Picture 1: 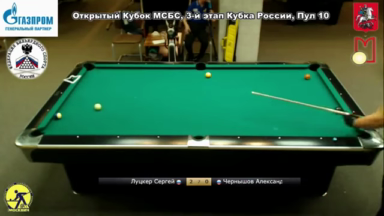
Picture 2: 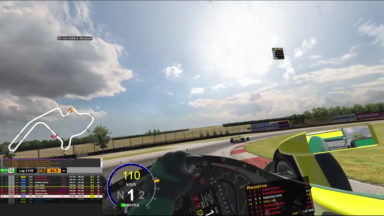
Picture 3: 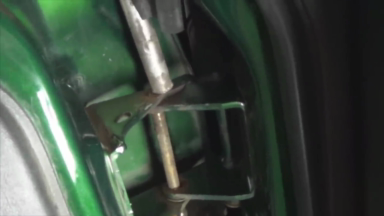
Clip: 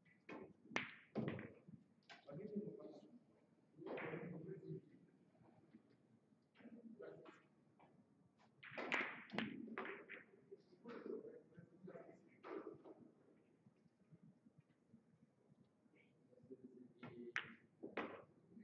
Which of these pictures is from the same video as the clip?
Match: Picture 1